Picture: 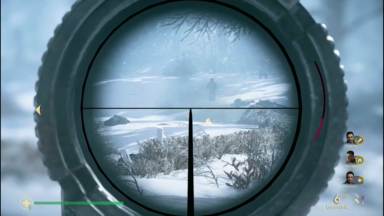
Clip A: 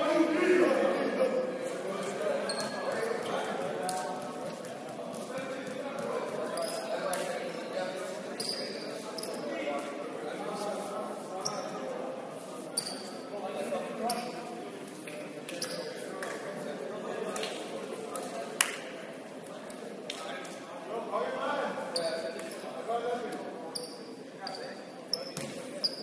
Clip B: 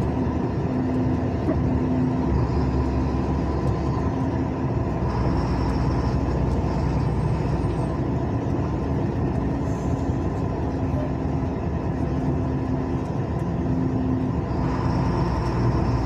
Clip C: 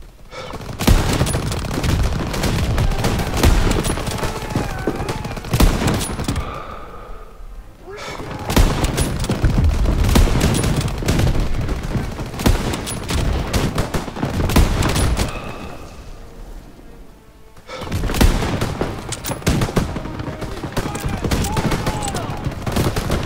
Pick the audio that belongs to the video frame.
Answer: C